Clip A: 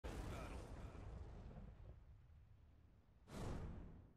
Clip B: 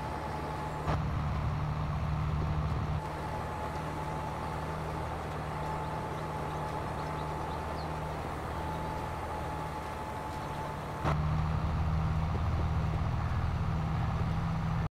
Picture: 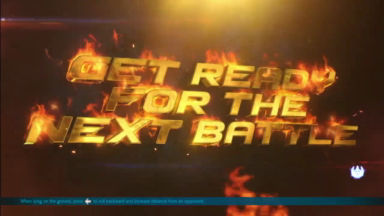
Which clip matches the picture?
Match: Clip A